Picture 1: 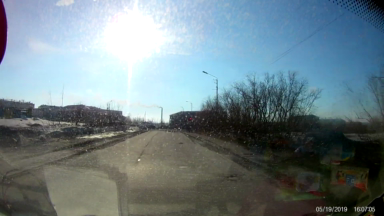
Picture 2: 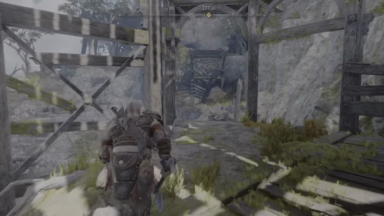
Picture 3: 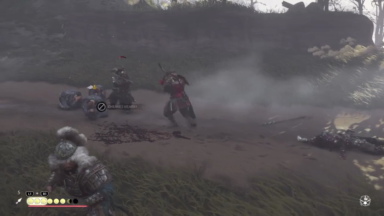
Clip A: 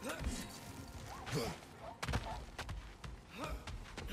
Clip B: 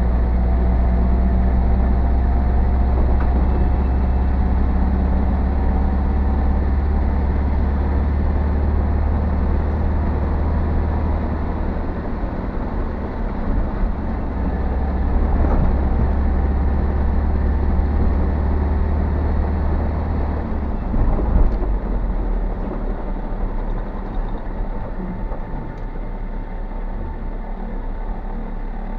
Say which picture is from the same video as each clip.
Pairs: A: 2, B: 1